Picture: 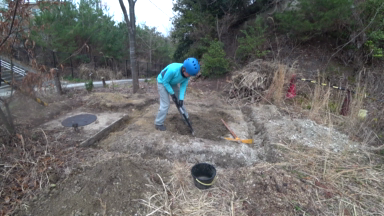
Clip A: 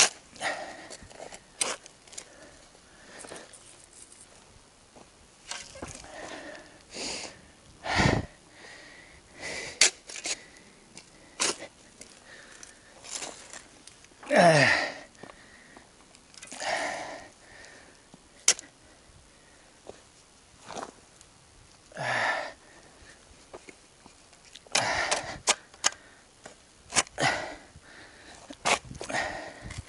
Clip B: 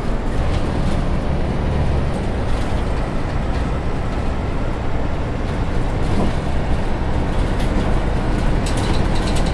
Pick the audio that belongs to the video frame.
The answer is A